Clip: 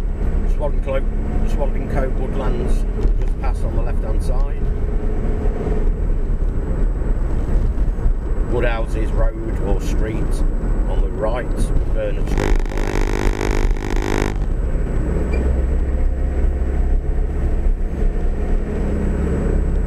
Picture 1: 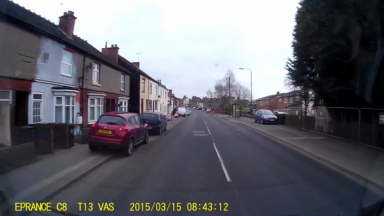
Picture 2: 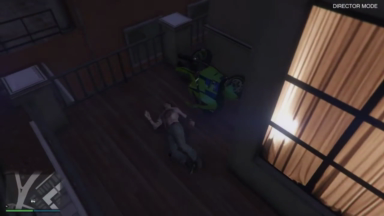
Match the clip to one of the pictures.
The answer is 1